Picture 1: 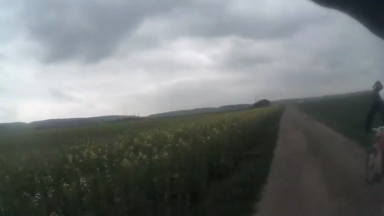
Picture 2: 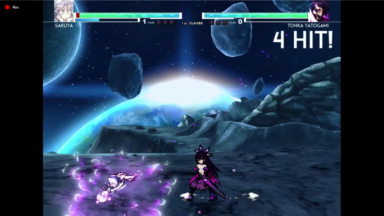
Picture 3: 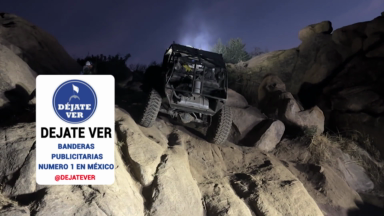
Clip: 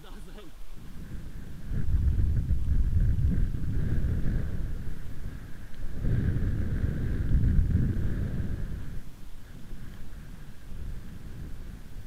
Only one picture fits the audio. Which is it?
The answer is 1